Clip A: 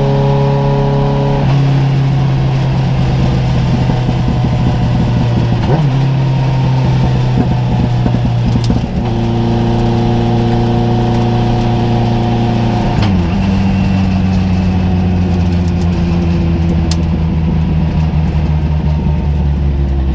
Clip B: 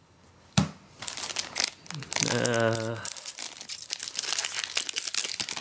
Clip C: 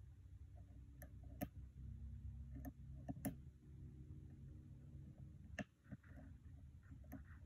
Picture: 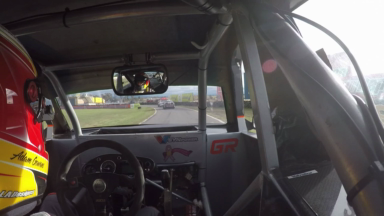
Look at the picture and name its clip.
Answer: A